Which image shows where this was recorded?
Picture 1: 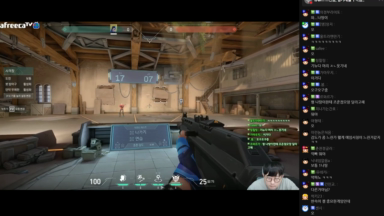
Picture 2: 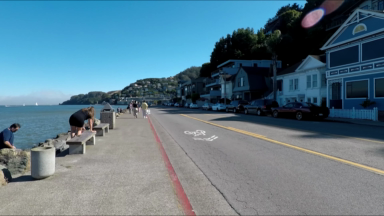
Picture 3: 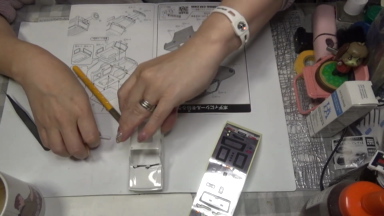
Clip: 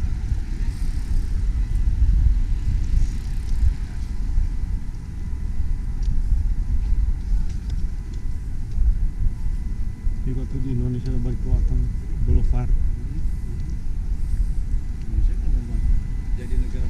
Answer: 2